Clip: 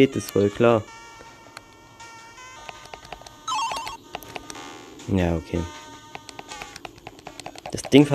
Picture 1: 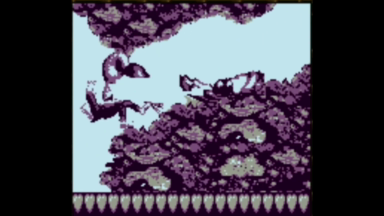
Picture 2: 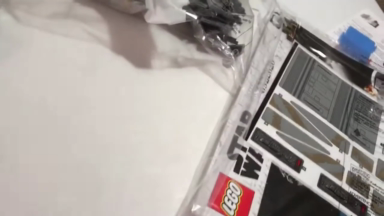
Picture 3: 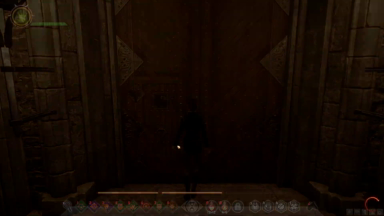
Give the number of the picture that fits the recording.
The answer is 1